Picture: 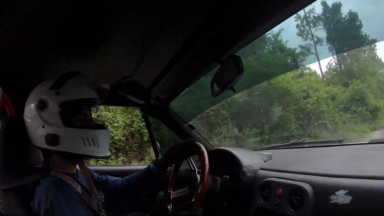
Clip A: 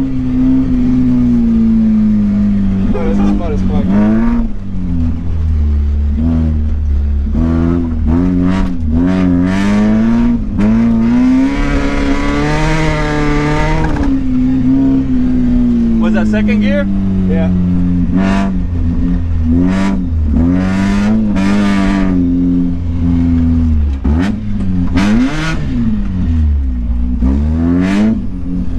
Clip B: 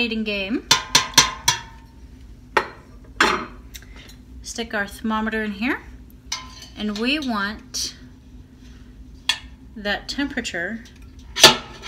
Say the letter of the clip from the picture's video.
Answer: A